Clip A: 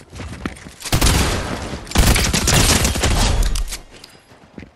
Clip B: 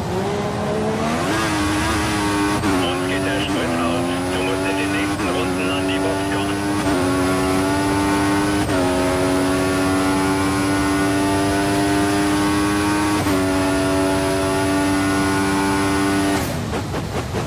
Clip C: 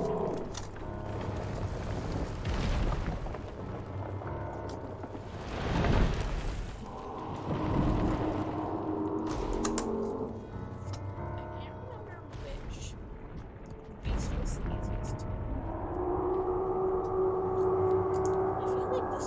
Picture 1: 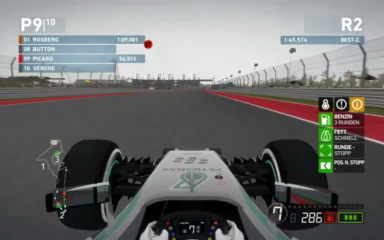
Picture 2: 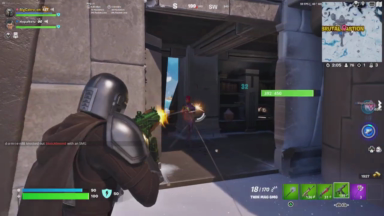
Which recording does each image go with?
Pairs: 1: B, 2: A